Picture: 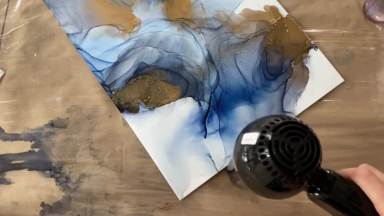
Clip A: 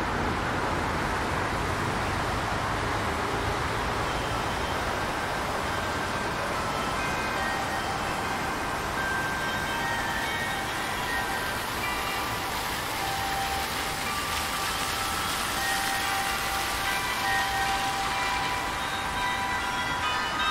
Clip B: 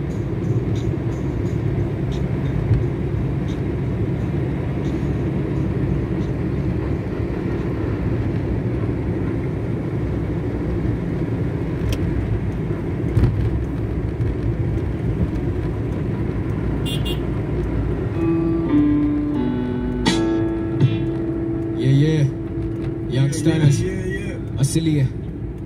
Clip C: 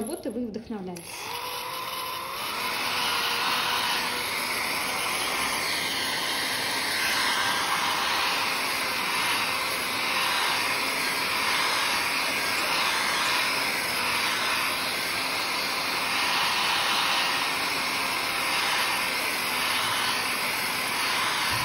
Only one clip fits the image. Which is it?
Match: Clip C